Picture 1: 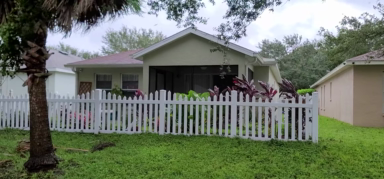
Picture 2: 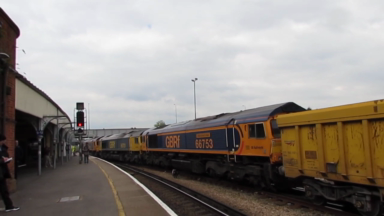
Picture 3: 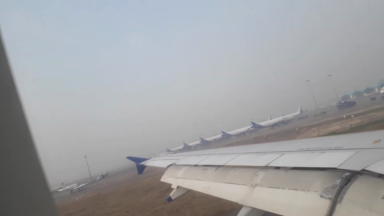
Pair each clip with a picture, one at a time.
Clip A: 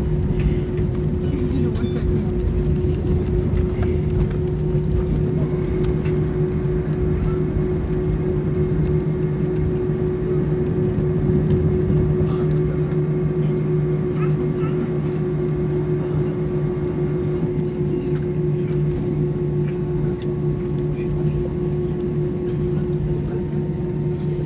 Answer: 3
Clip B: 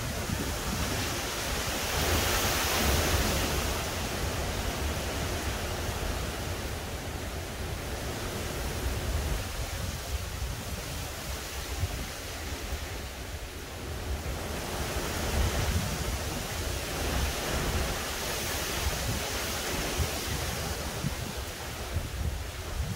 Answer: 1